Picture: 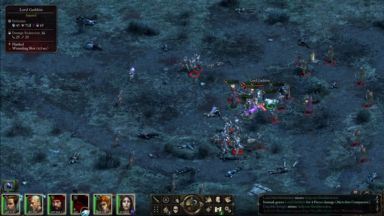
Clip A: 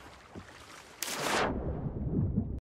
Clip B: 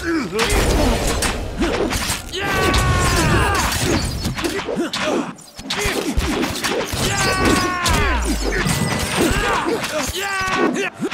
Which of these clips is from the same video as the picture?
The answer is B